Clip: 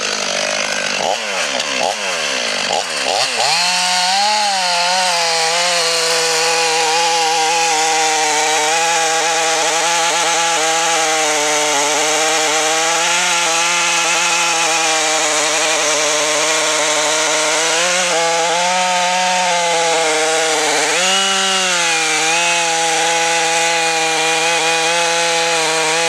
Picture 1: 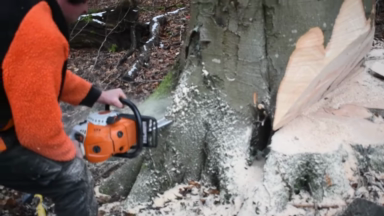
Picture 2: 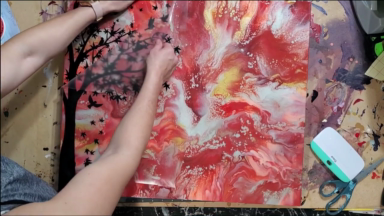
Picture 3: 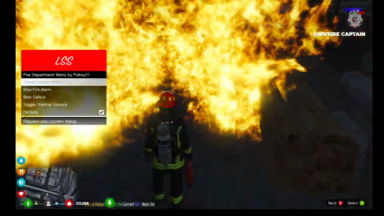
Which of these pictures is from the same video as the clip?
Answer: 1